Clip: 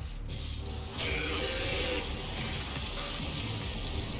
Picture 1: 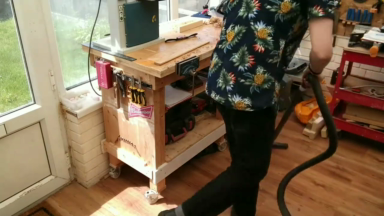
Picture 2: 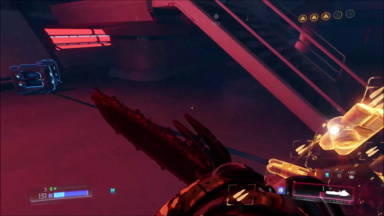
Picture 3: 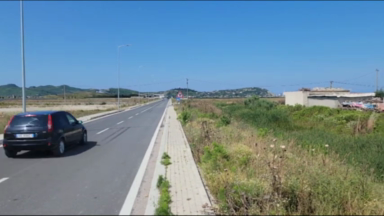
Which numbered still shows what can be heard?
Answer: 2